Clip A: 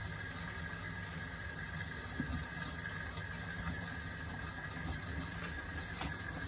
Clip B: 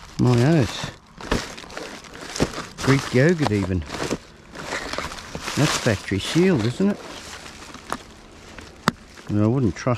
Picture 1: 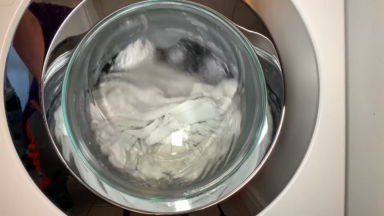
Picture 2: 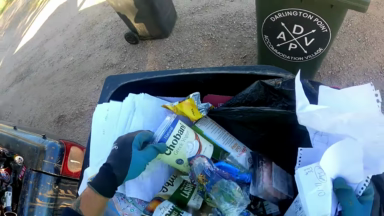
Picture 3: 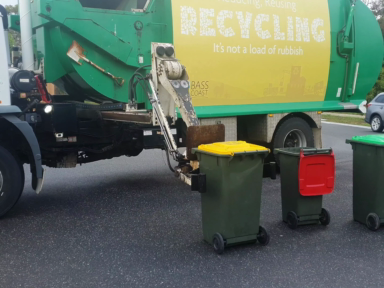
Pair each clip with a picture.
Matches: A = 1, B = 2